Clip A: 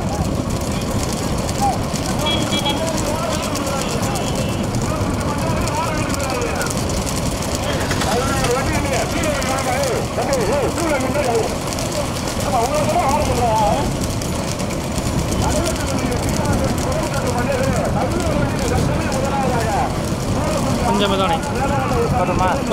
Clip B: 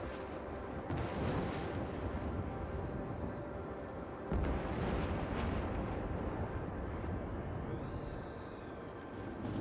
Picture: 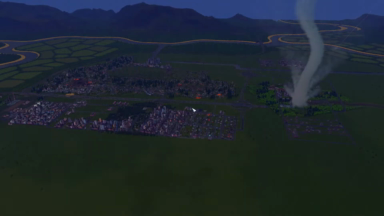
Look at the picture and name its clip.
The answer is B